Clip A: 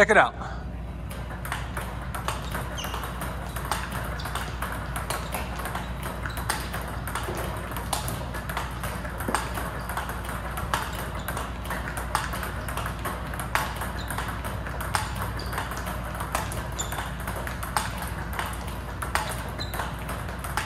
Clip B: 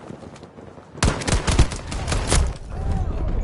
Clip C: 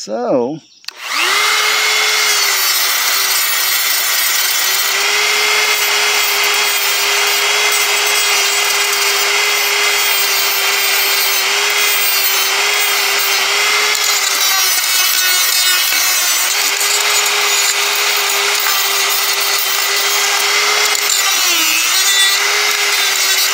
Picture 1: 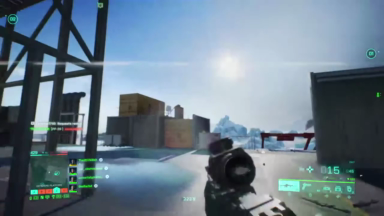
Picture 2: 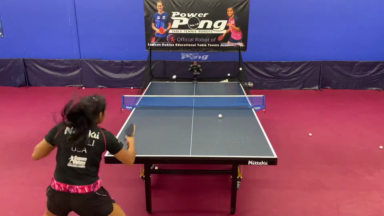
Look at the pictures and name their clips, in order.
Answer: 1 B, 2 A